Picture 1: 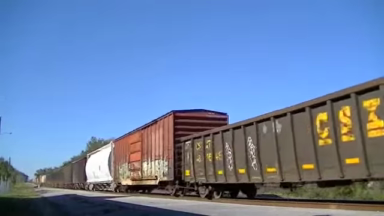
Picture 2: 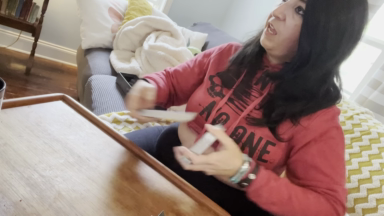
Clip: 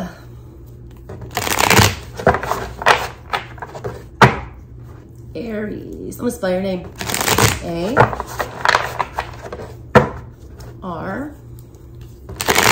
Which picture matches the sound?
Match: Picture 2